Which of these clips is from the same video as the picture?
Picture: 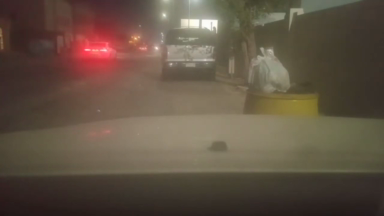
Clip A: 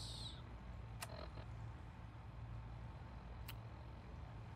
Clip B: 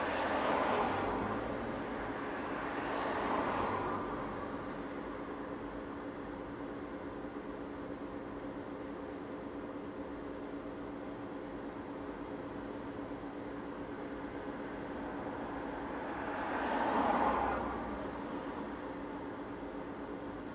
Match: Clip B